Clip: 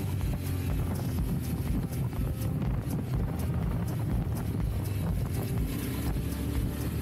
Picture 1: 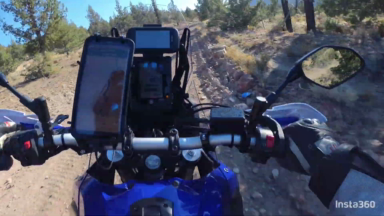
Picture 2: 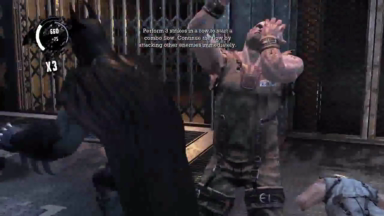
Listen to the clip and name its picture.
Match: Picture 1